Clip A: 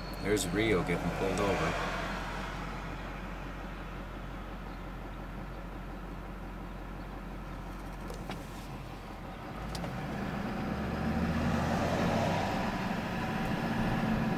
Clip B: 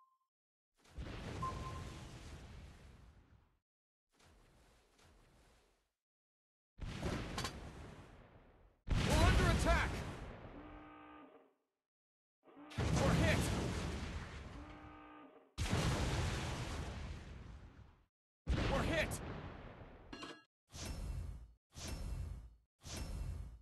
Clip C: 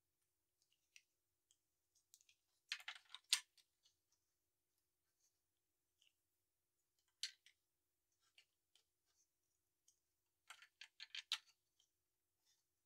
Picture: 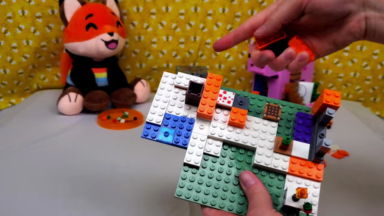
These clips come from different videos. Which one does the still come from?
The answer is C